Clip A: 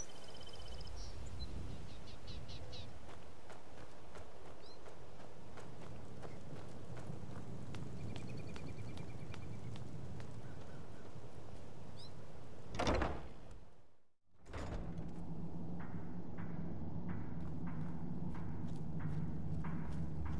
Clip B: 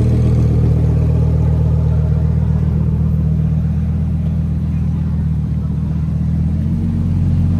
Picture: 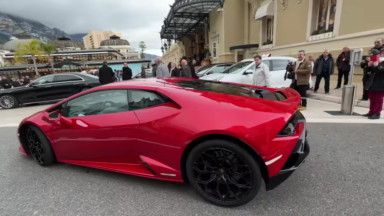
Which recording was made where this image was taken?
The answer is B